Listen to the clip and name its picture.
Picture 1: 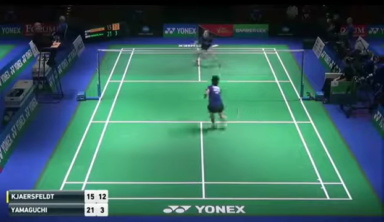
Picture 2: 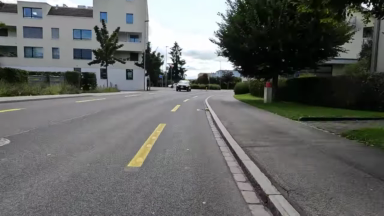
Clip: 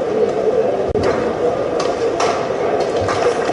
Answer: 1